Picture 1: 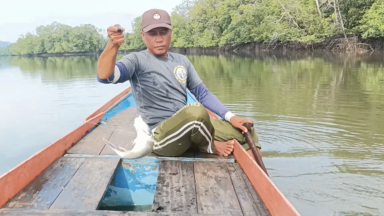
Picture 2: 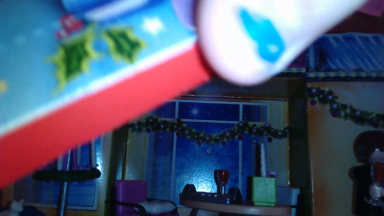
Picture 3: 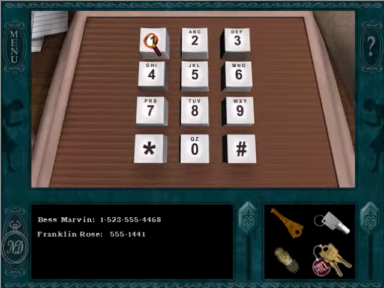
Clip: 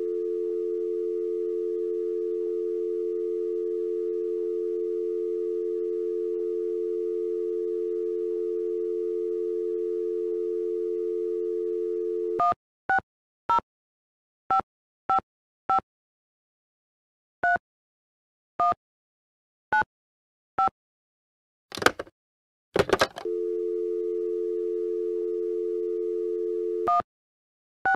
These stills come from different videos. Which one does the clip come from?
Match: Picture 3